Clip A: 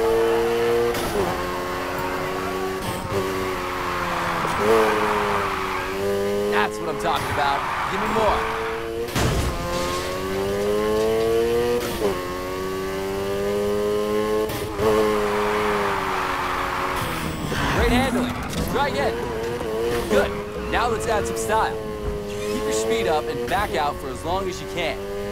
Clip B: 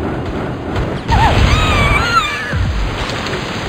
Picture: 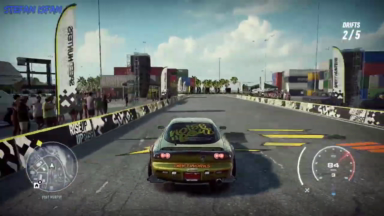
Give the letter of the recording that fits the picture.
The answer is A